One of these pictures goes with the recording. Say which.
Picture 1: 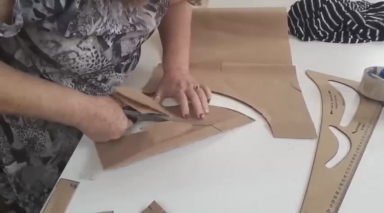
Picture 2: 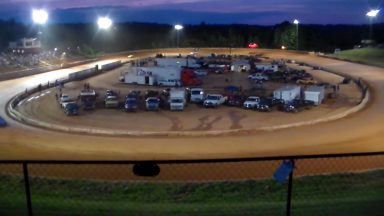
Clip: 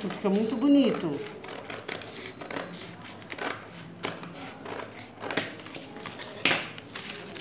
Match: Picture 1